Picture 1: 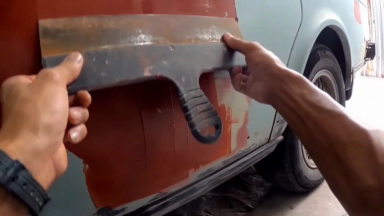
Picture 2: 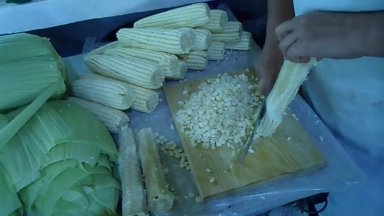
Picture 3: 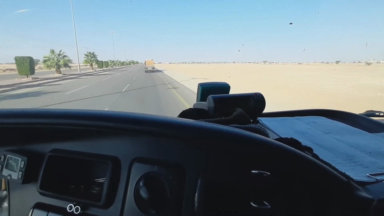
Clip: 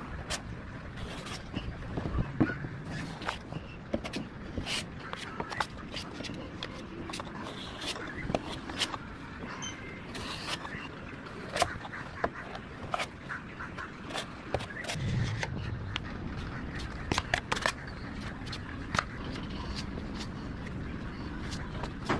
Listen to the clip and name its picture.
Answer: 1